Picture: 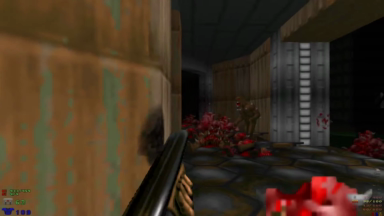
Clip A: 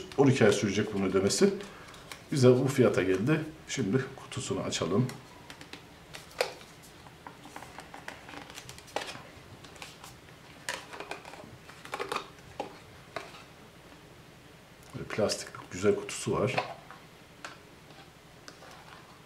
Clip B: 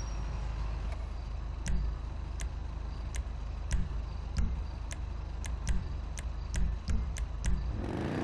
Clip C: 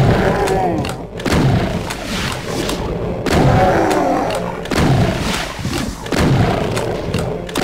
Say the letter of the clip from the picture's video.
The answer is C